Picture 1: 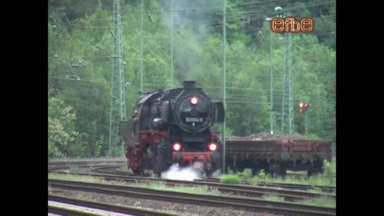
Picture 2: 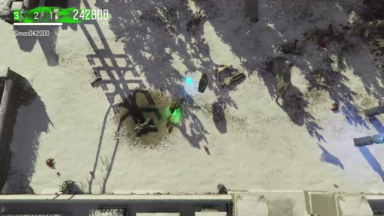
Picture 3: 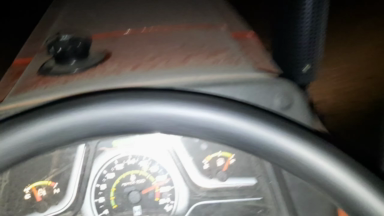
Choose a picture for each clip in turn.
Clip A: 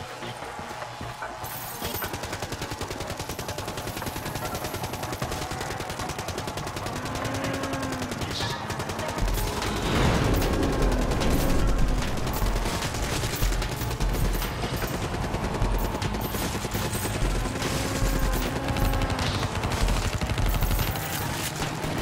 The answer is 2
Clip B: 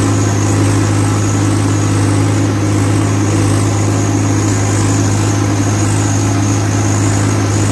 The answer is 3